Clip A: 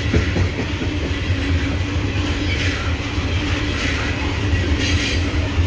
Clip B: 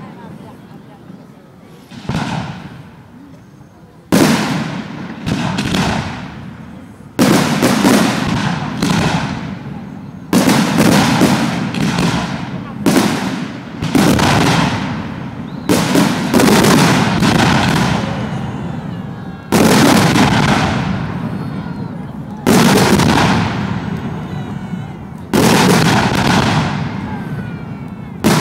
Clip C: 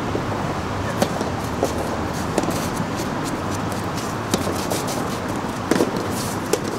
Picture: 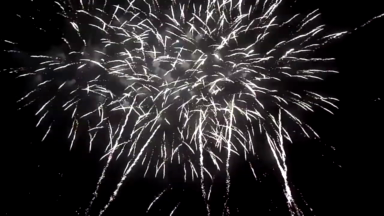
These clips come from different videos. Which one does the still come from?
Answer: B